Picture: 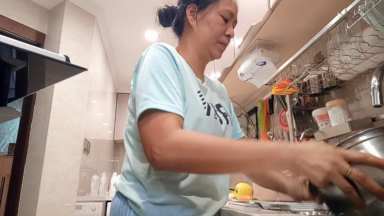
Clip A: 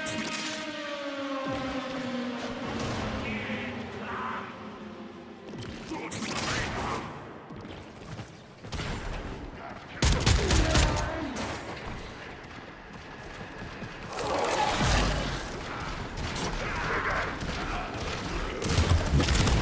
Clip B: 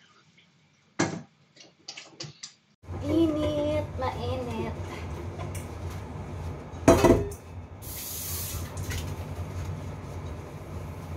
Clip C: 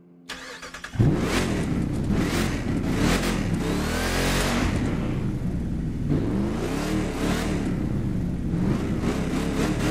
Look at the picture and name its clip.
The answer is B